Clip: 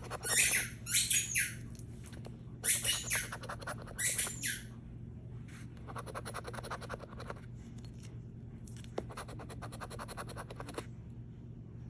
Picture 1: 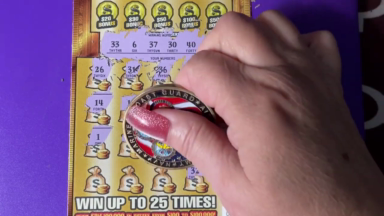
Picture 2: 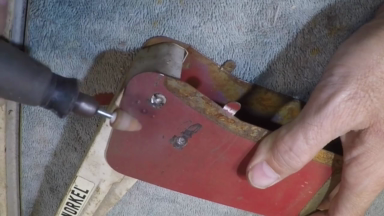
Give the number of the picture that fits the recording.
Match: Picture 1